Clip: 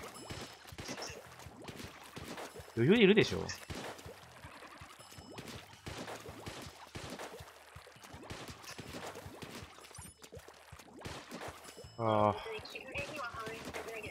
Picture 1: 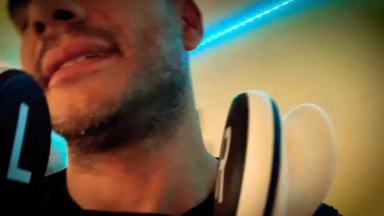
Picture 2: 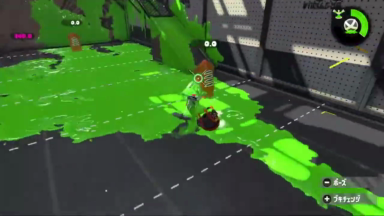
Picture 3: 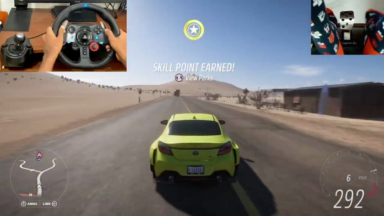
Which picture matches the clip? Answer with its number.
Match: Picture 2